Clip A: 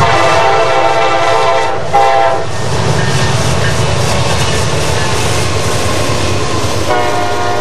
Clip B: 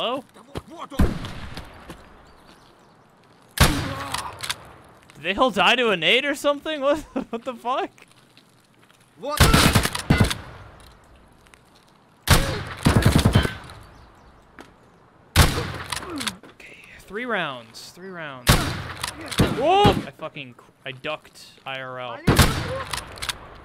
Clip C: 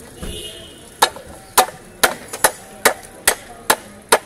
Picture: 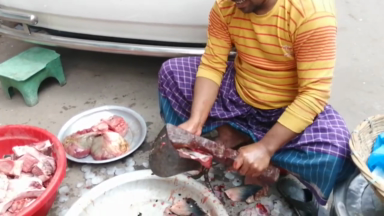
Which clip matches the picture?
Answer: C